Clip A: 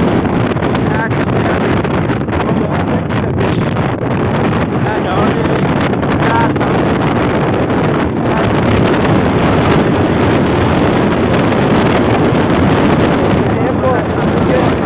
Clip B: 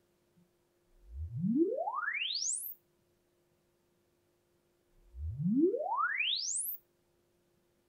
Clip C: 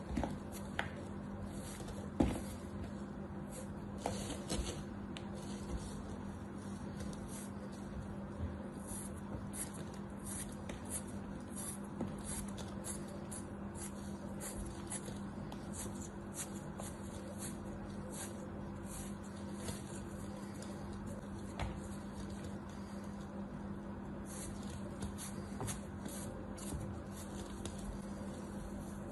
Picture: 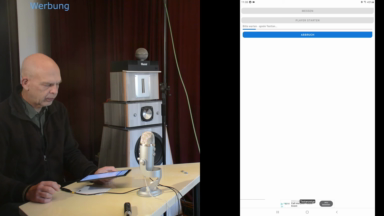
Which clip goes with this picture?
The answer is B